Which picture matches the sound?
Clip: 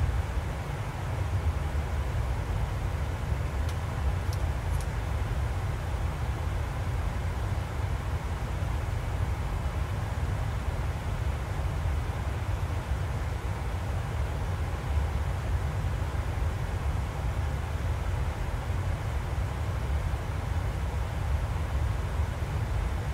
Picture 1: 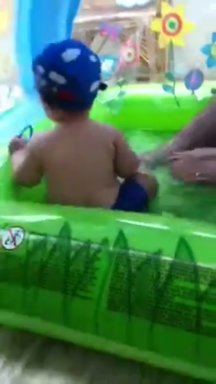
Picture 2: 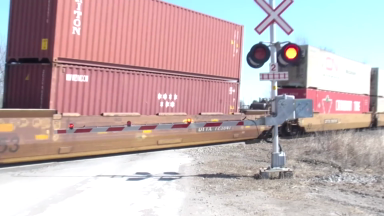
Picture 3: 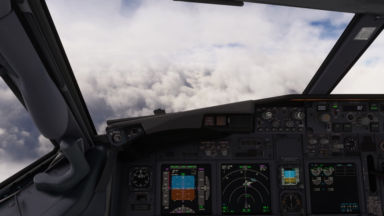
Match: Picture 3